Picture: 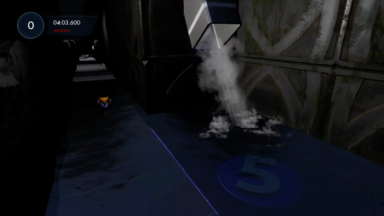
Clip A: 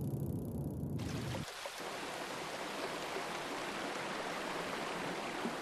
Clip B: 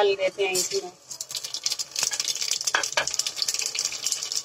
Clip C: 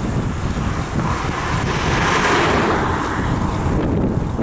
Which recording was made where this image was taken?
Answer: A